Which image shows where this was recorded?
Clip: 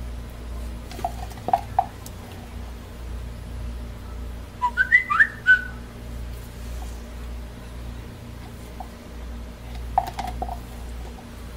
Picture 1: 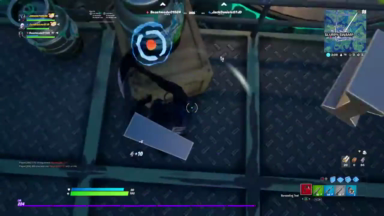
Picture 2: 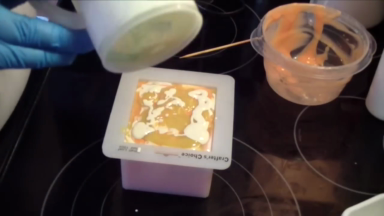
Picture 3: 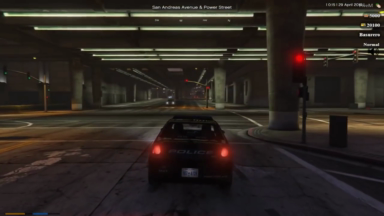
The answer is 2